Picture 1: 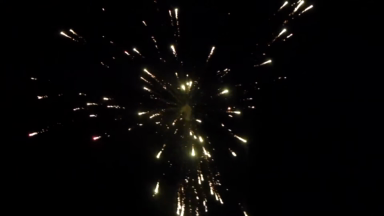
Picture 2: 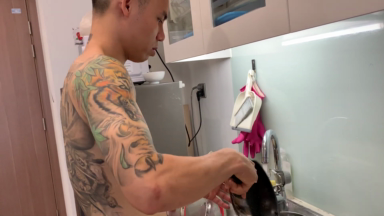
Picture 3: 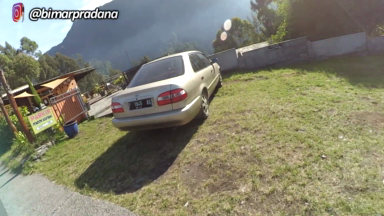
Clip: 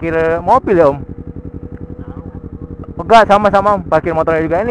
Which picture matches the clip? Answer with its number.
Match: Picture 3